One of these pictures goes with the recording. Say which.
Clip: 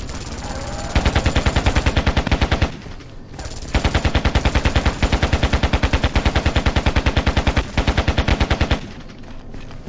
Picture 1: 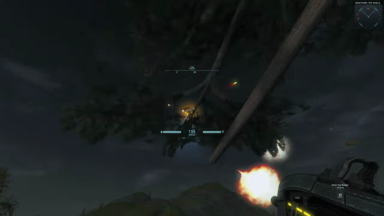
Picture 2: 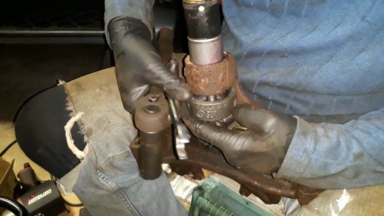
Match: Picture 1